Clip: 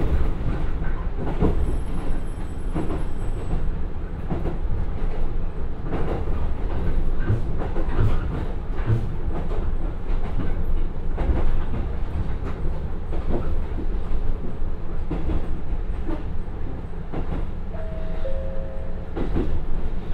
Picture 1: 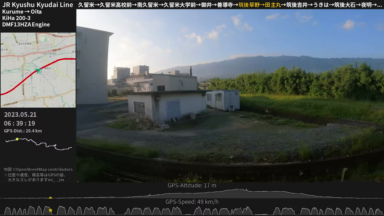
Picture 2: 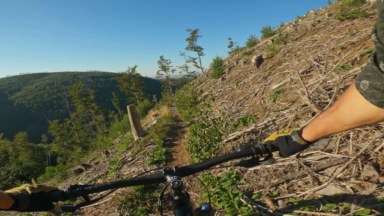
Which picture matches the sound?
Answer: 1